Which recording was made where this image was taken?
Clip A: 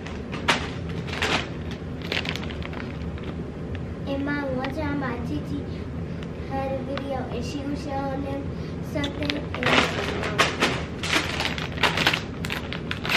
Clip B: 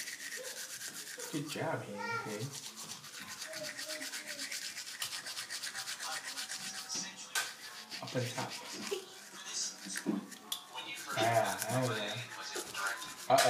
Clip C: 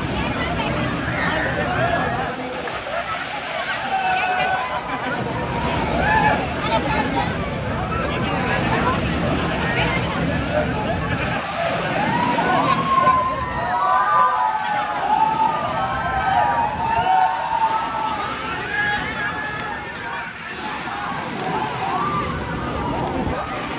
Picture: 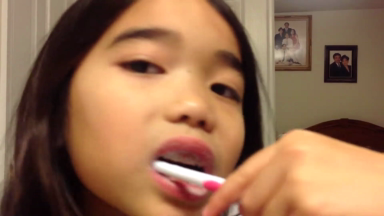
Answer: B